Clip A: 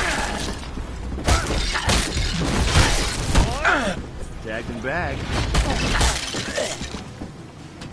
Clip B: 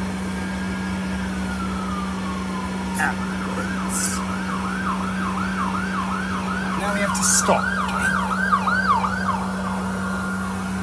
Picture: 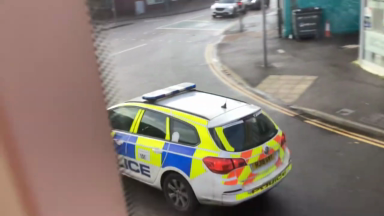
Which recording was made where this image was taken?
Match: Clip B